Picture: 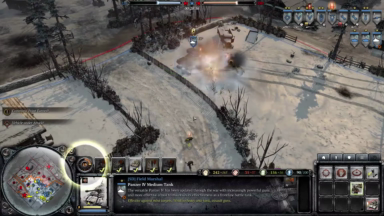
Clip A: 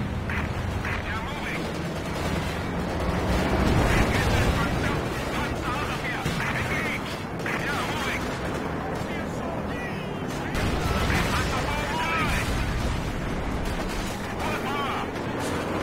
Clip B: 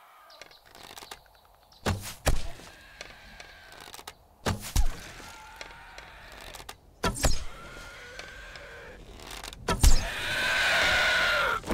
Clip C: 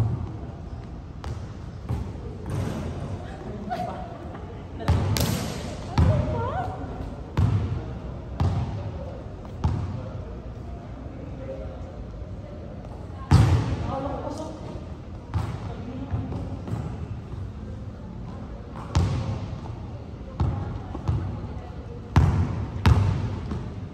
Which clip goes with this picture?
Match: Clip A